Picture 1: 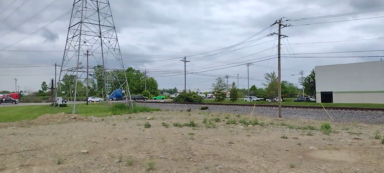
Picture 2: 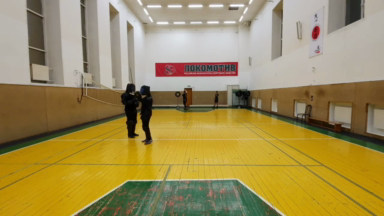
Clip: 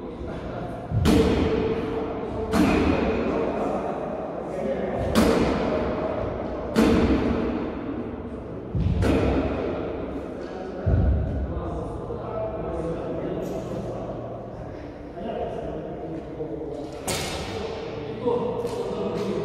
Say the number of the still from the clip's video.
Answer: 2